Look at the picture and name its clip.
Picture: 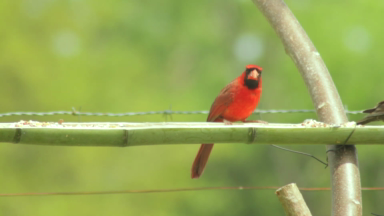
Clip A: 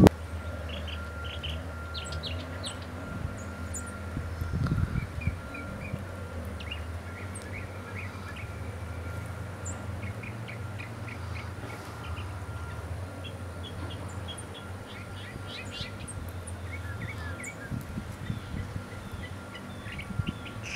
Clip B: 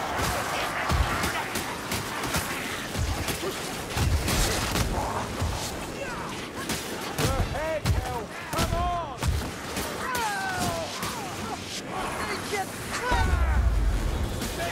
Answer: A